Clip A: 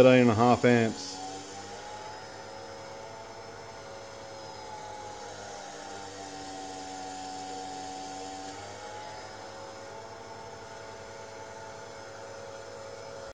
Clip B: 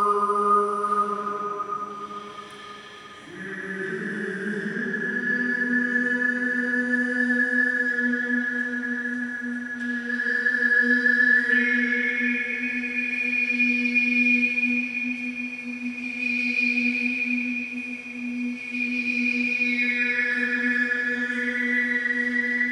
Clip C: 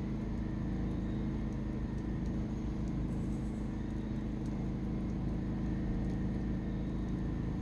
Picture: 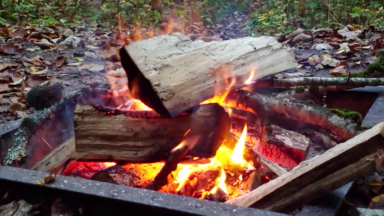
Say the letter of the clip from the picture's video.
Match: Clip C